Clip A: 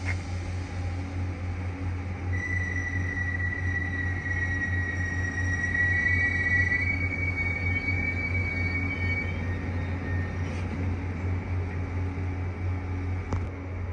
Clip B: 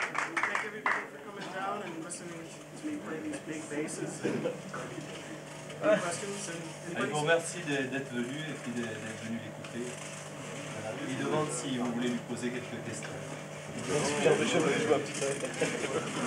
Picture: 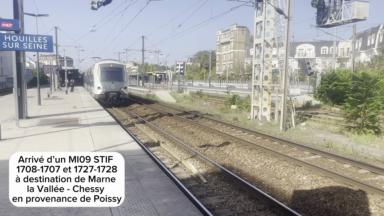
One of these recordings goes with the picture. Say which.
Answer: A